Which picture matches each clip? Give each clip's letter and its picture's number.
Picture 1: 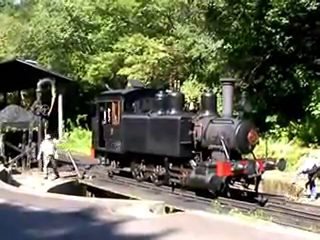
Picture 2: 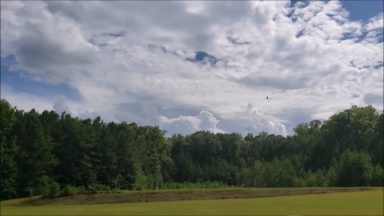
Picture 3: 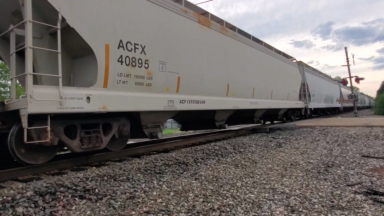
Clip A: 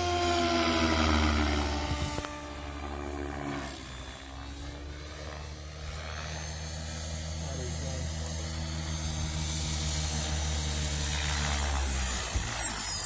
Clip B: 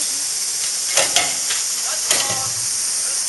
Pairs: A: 2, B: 1